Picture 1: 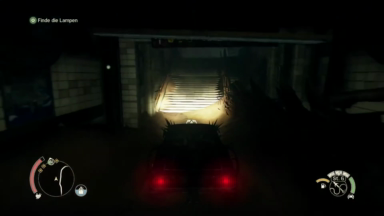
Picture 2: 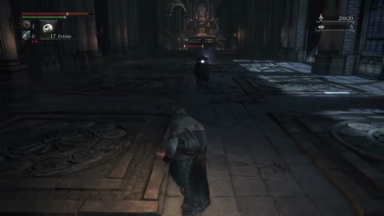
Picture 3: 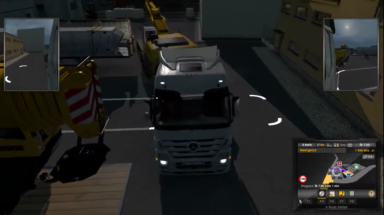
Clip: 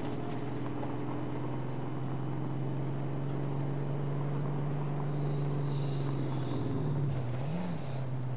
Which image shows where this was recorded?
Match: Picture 1